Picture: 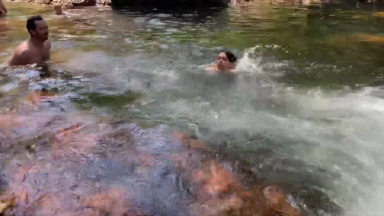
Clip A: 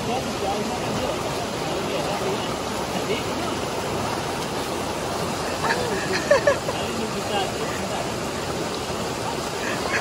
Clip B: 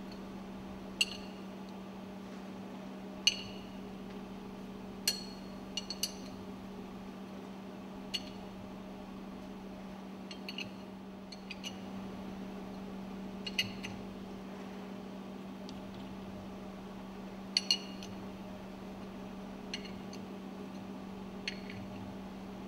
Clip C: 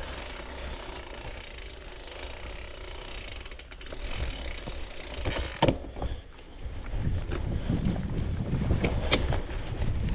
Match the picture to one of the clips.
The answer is A